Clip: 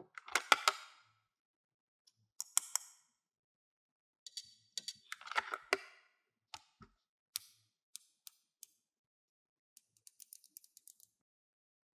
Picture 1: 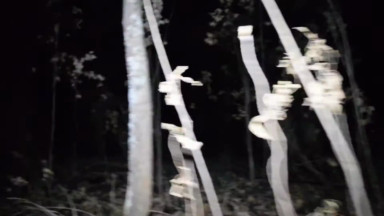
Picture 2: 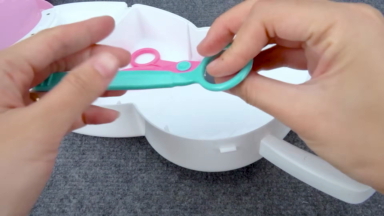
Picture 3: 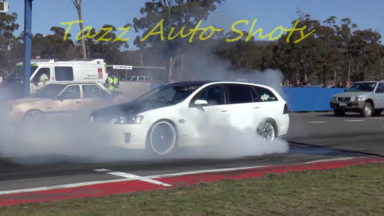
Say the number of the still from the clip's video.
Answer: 2